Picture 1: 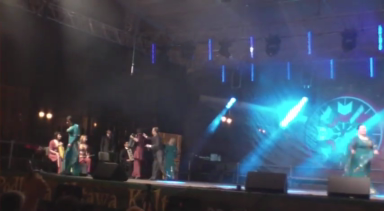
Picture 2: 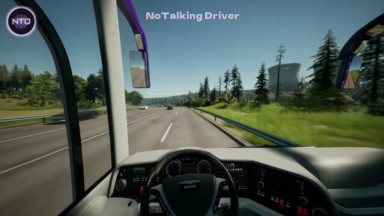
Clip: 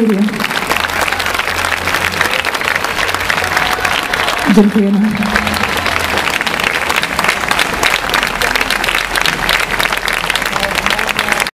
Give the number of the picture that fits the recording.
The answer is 1